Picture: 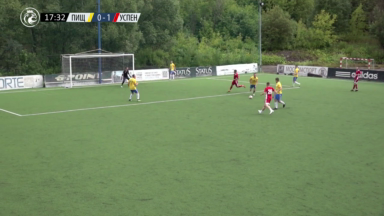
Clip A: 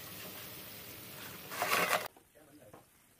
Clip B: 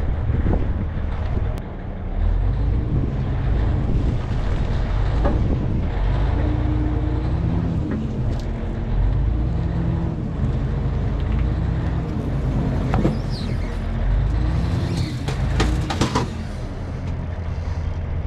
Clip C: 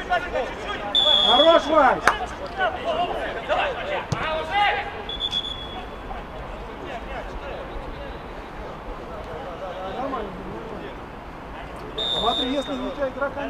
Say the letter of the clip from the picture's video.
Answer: C